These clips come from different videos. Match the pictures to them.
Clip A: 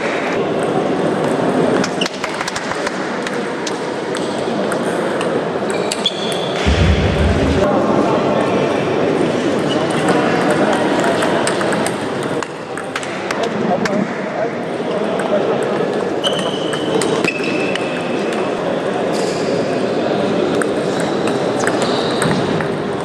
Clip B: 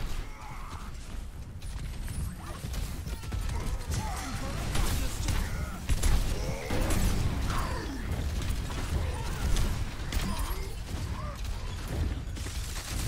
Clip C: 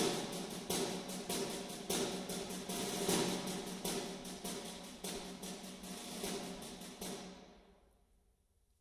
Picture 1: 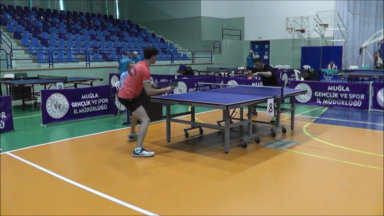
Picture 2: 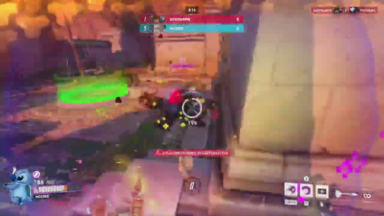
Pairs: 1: A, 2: B